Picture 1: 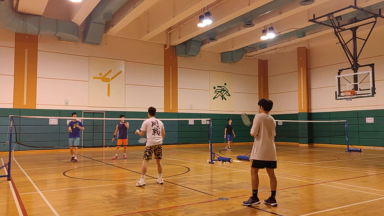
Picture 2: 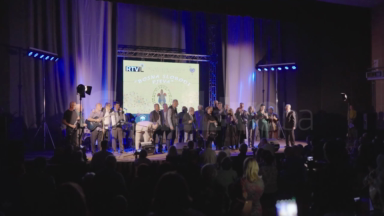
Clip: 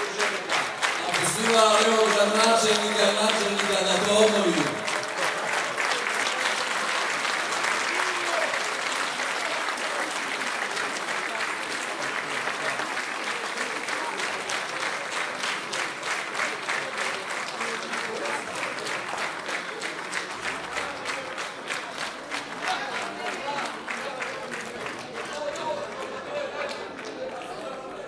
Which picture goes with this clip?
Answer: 2